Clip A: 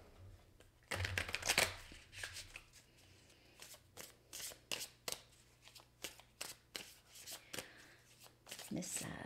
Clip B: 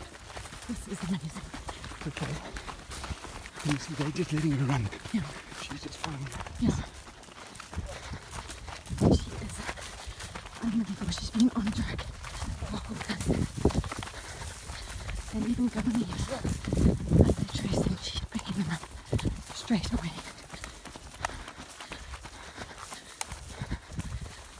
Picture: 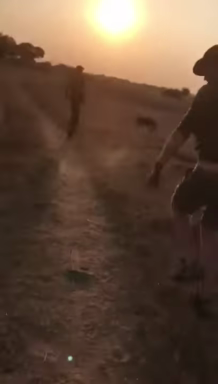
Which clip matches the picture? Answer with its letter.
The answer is B